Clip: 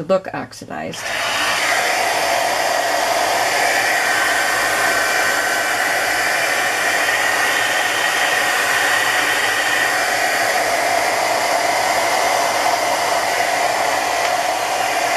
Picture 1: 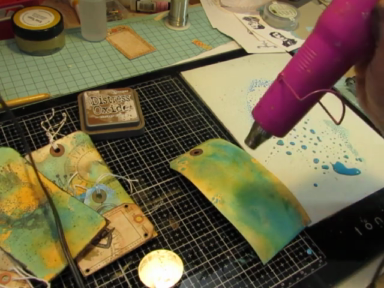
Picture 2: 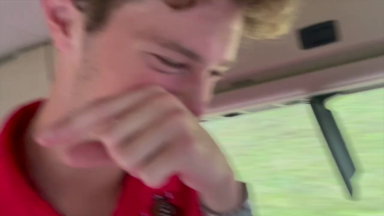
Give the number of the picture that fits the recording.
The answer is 1